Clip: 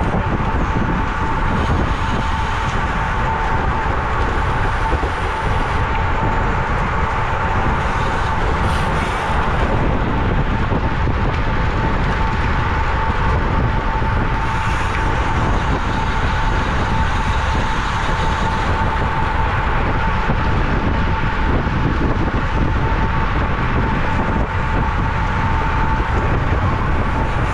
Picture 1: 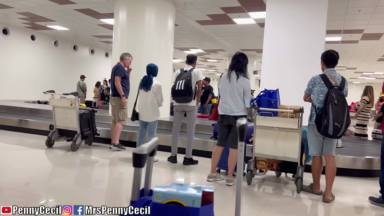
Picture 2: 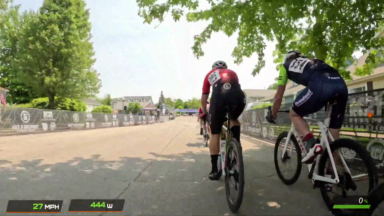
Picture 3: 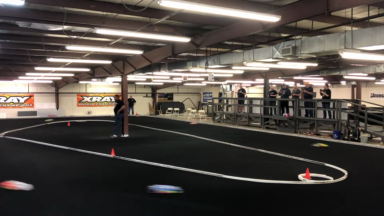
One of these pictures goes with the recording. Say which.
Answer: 2